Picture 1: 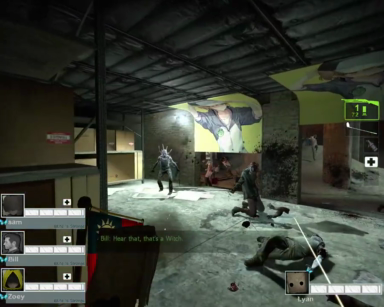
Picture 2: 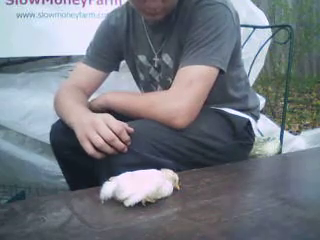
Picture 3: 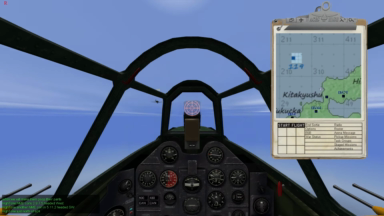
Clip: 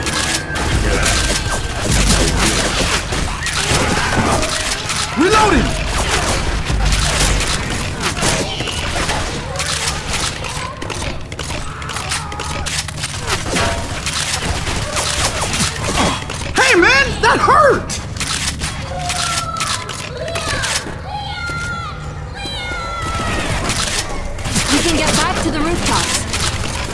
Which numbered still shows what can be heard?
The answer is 1